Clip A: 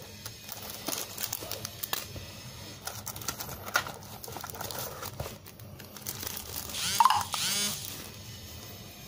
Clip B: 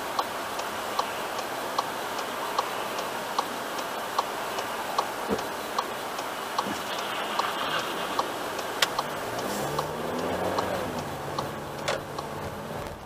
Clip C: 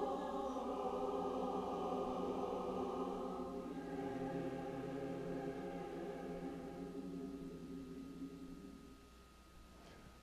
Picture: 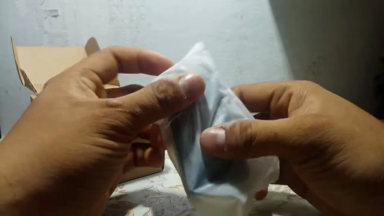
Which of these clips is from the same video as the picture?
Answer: A